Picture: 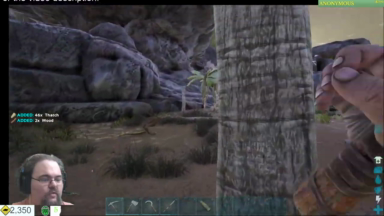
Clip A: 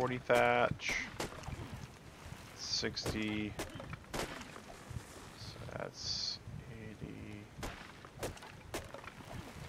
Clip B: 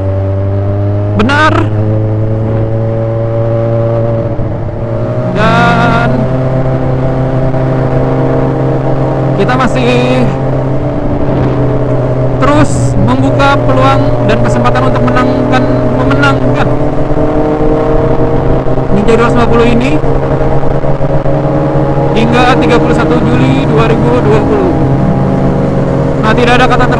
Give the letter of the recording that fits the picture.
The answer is A